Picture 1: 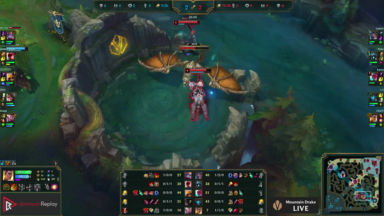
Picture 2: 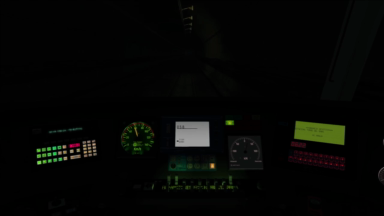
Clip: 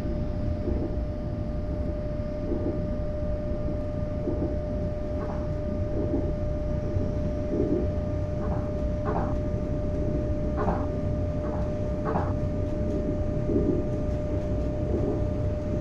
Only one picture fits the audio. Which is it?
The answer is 2